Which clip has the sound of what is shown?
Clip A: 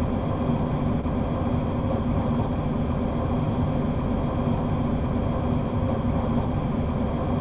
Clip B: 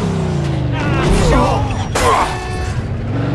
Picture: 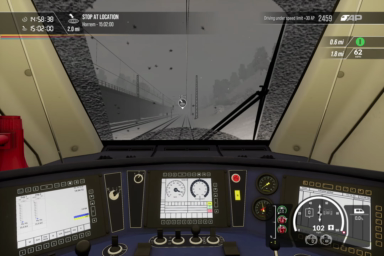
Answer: A